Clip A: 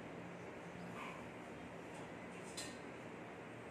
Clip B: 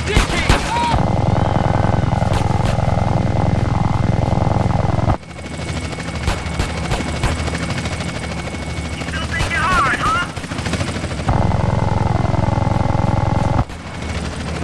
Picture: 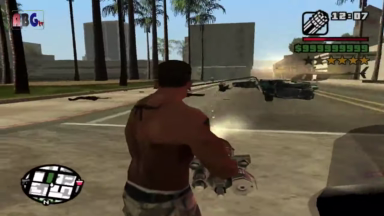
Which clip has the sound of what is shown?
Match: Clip B